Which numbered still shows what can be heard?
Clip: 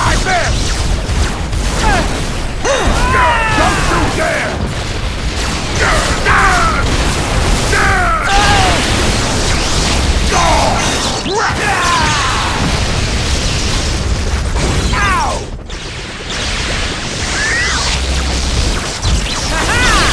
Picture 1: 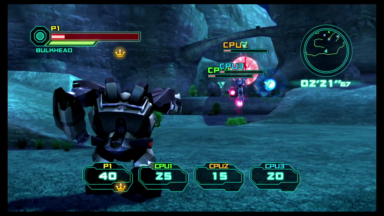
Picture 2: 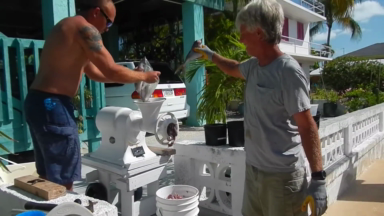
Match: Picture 1